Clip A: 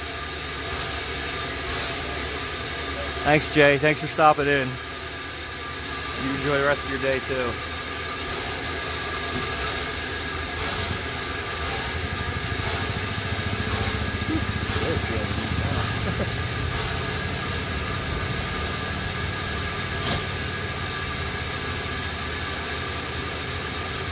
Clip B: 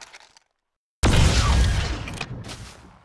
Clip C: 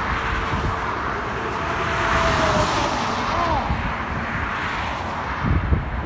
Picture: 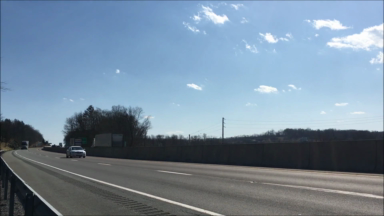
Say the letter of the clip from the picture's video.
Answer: C